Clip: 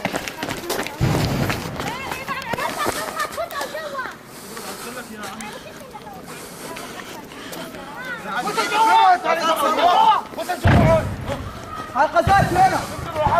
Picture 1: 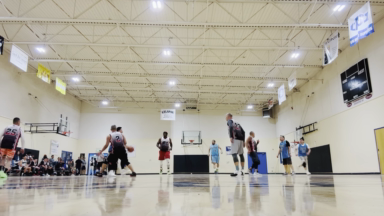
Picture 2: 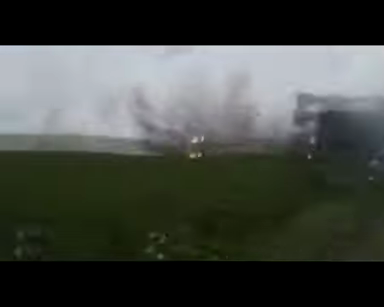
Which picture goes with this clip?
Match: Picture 2